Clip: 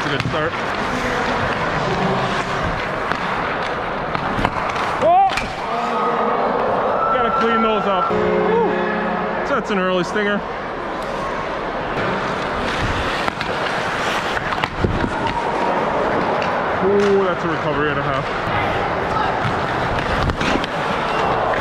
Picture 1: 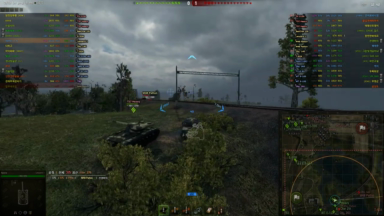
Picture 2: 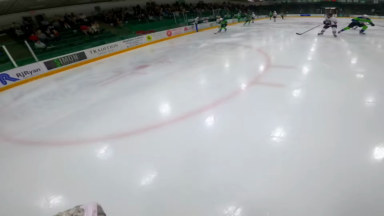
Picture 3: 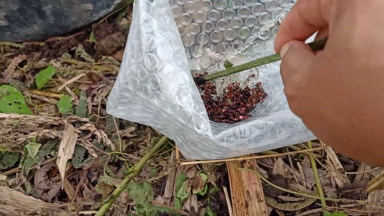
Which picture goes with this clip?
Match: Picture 2